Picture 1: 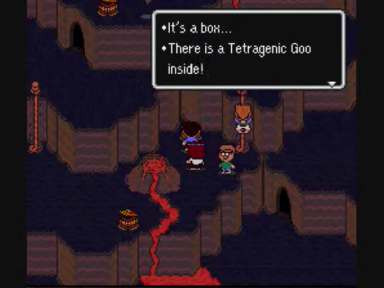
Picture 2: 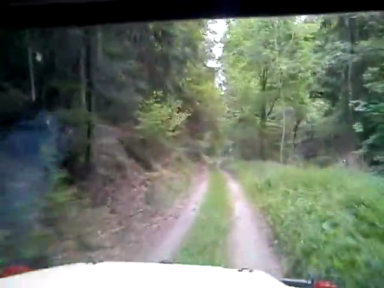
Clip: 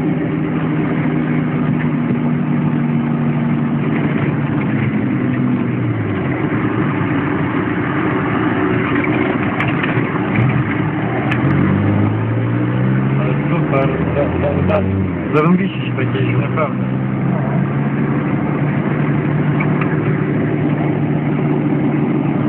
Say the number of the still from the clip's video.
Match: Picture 2